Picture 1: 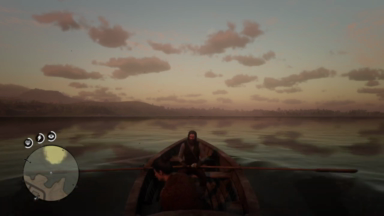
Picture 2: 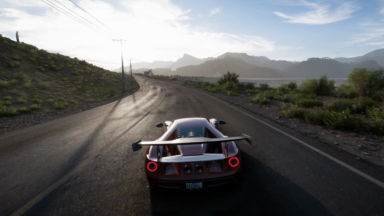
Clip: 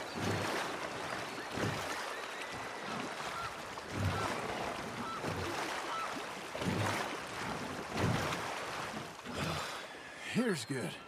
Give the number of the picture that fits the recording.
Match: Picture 1